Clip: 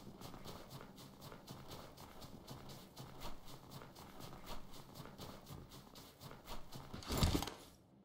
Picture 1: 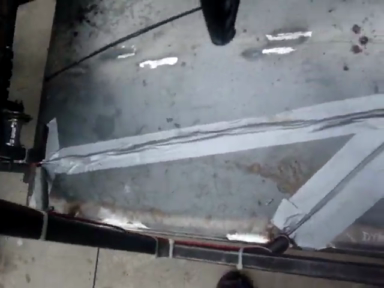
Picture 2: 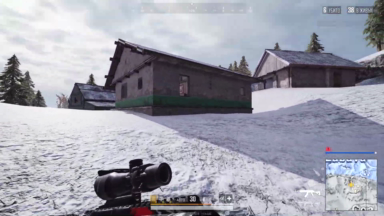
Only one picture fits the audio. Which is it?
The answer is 2